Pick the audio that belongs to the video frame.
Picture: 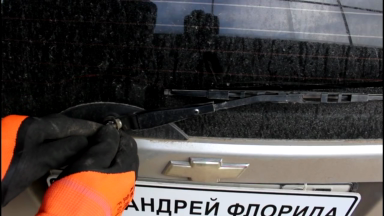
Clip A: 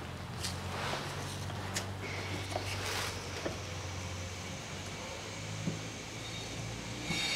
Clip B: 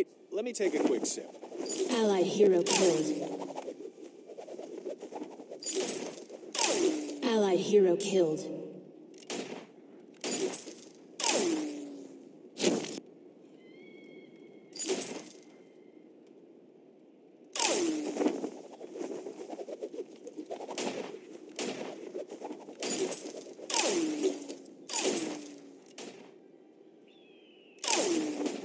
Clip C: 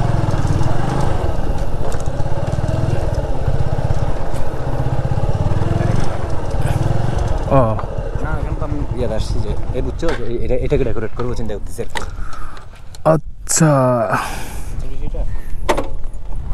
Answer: A